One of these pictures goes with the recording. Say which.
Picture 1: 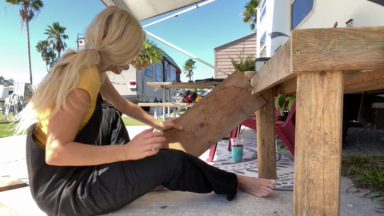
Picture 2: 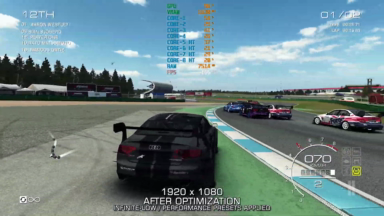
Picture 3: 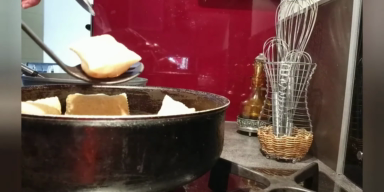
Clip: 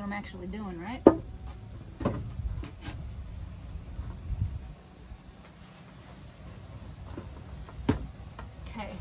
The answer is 1